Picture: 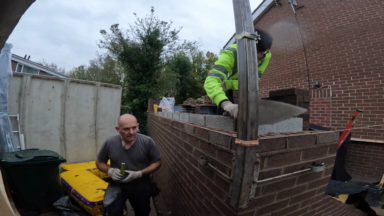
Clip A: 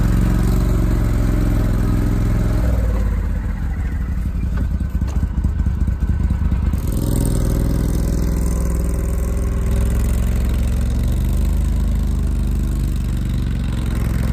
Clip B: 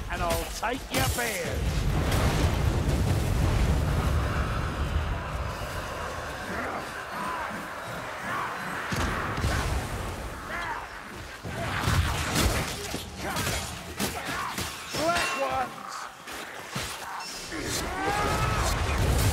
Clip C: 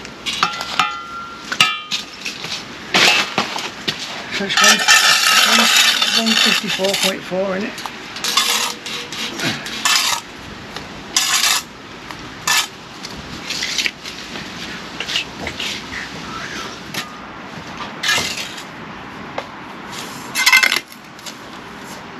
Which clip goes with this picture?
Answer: C